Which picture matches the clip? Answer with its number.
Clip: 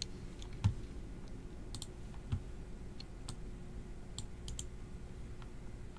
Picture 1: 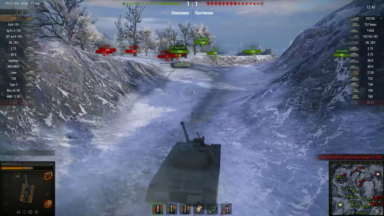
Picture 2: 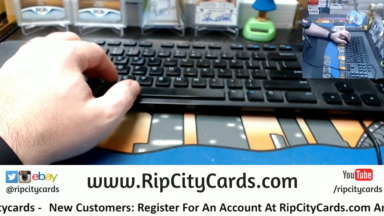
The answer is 2